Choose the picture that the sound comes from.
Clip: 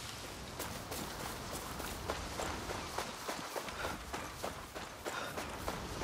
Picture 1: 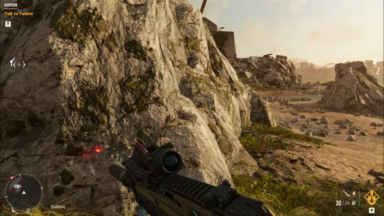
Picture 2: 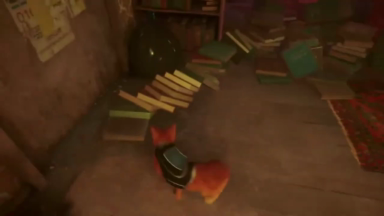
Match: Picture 1